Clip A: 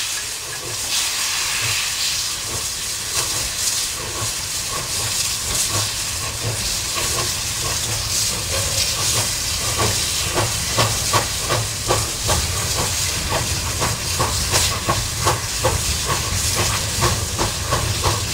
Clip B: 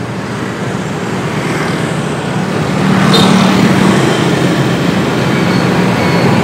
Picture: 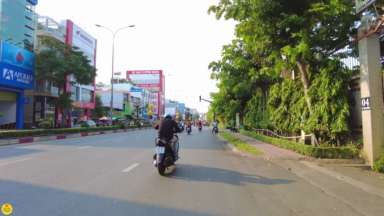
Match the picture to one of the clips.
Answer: B